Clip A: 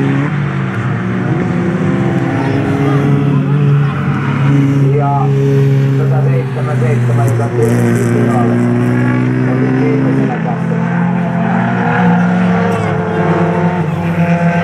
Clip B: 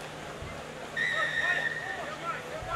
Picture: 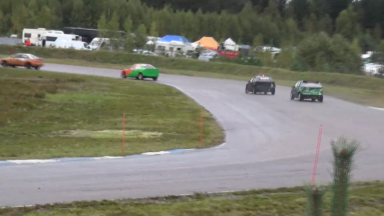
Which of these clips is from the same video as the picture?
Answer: A